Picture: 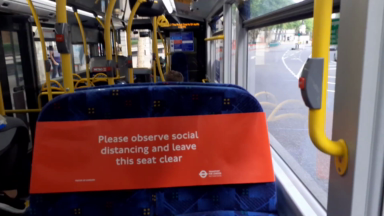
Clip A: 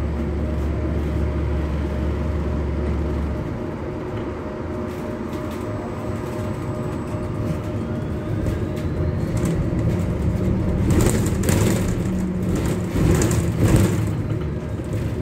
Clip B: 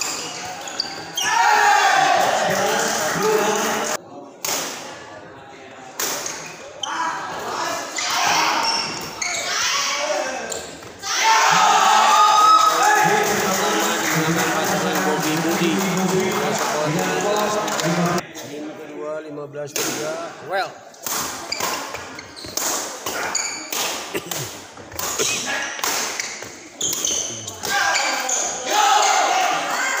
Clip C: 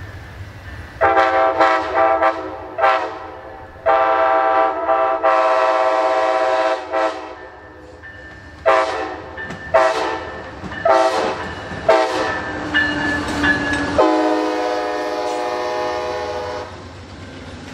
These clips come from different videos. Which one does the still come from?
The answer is A